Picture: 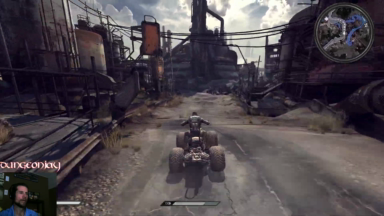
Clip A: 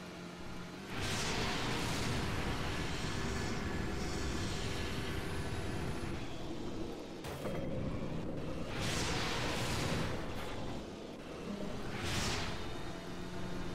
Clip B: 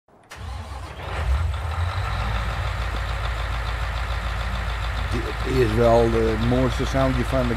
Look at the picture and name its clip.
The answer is A